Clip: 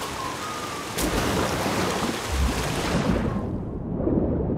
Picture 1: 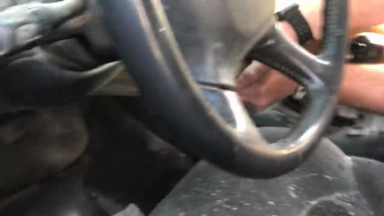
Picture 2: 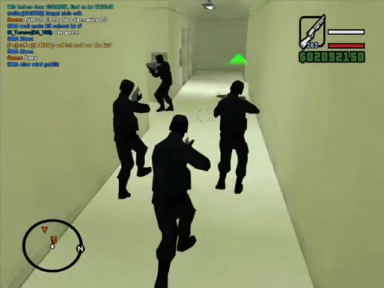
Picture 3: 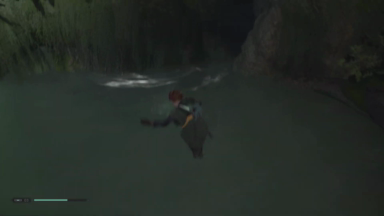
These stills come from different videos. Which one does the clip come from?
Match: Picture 3